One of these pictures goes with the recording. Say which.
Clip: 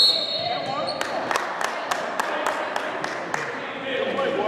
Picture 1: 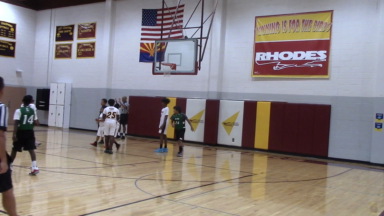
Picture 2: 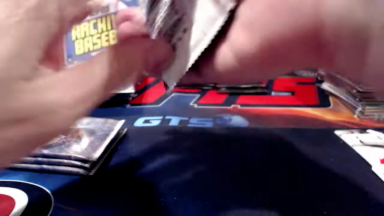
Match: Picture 1